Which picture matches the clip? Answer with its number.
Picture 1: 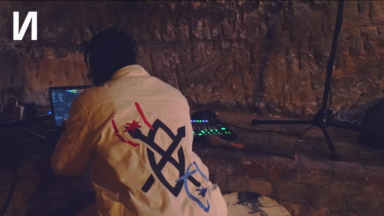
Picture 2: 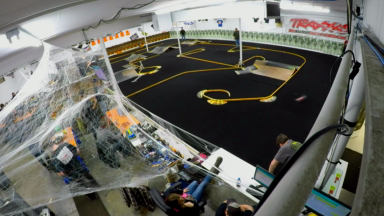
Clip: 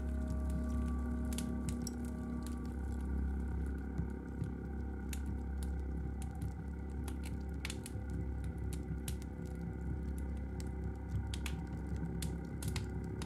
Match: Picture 1